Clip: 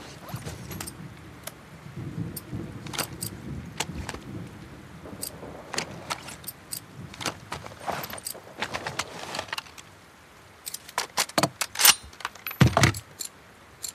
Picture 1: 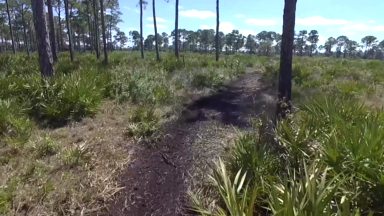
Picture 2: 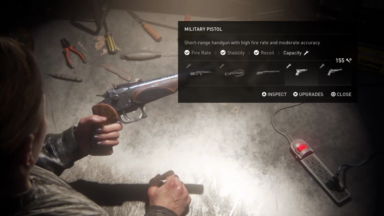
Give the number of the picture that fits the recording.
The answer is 2